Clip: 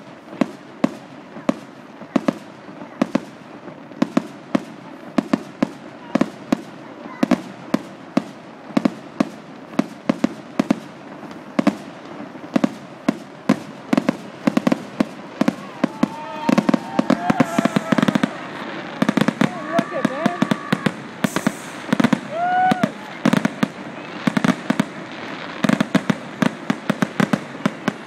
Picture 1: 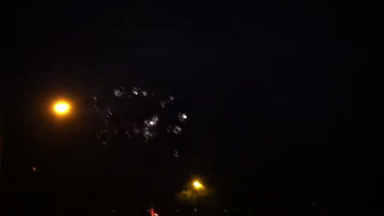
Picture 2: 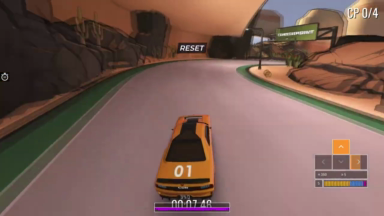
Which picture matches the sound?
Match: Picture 1